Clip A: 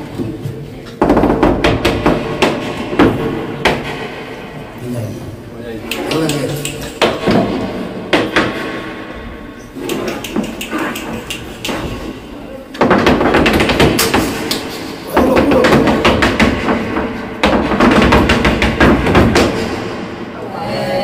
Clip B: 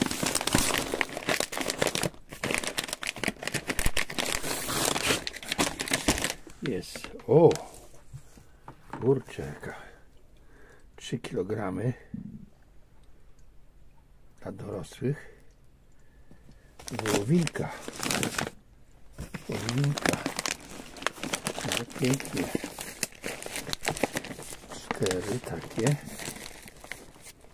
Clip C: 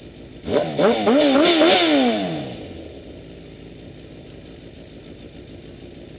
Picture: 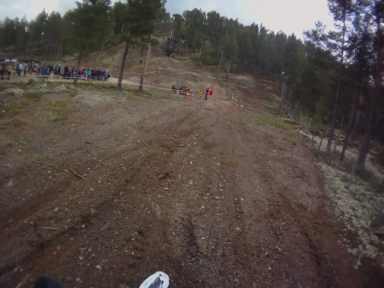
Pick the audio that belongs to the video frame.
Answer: C